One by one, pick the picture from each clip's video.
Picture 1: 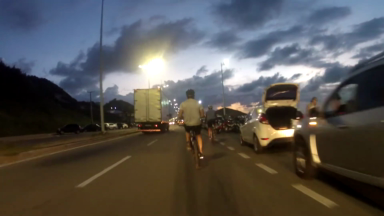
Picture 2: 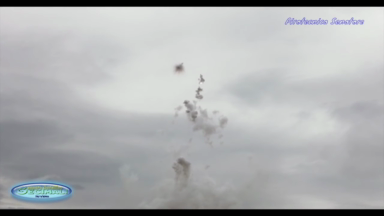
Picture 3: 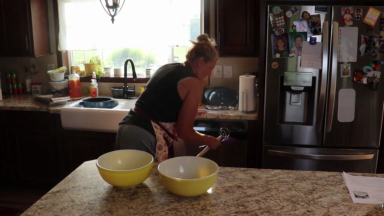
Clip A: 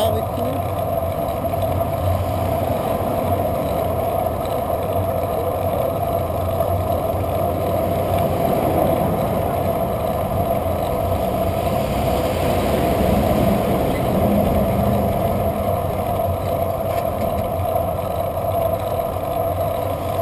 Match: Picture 1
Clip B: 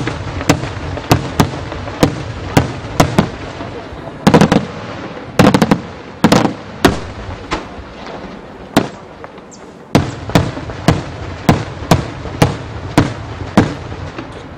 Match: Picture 2